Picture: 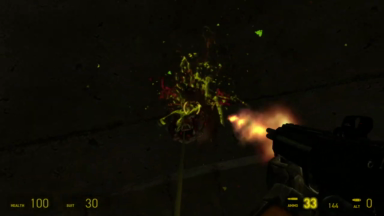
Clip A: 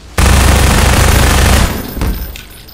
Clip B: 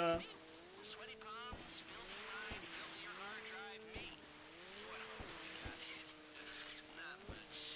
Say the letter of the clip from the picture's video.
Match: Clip A